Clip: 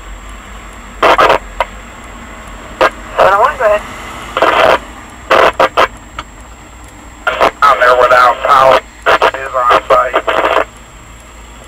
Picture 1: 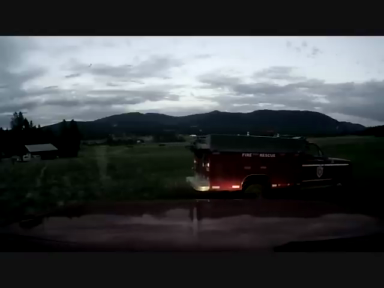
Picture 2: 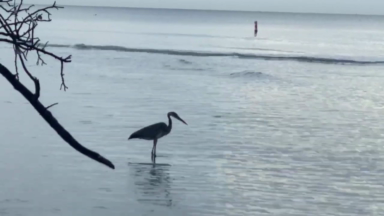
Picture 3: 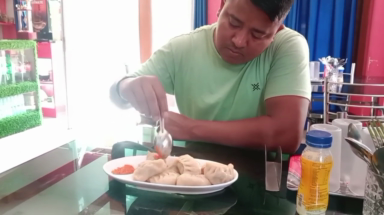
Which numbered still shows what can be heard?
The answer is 1